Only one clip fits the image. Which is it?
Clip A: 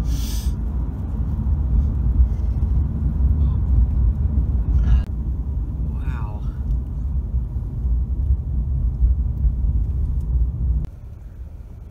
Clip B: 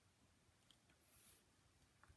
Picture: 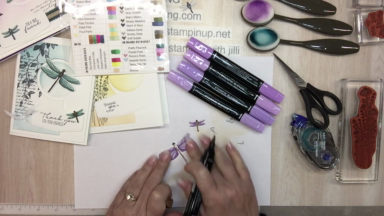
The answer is B